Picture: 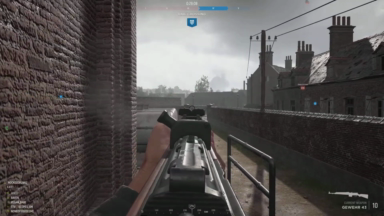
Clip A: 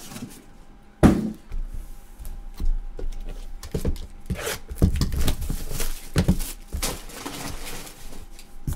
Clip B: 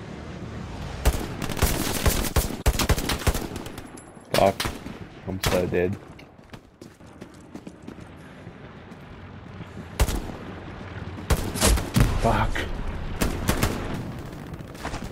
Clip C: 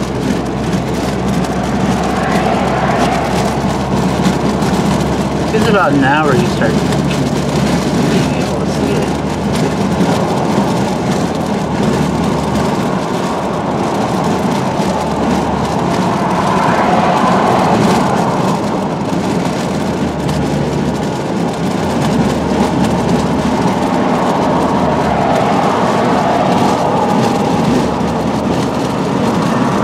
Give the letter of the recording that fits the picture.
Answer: B